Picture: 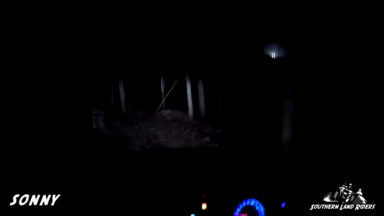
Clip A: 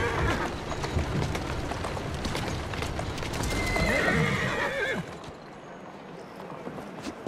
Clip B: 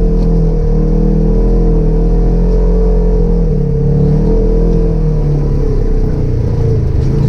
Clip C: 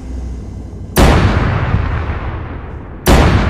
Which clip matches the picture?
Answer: B